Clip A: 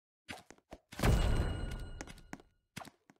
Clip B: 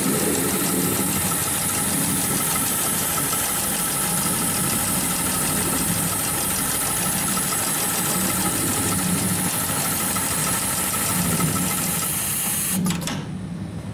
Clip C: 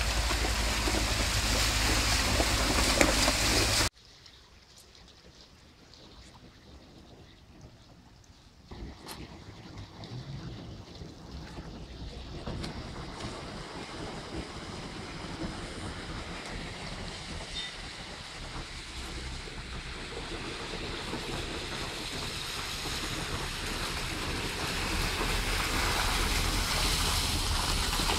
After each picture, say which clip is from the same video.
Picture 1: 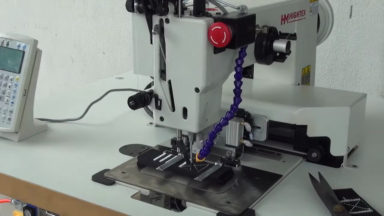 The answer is B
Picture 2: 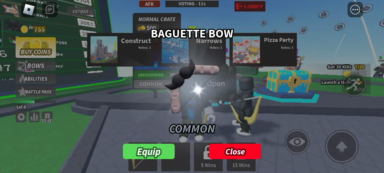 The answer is A